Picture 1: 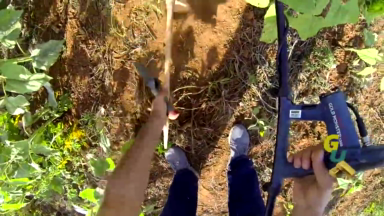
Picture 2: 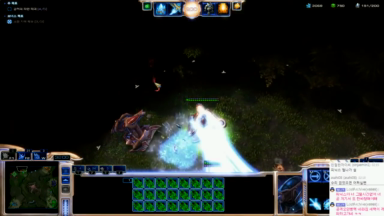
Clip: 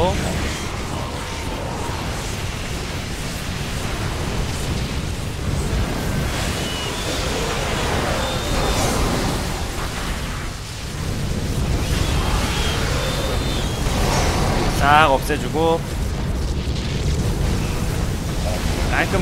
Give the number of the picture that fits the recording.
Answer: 2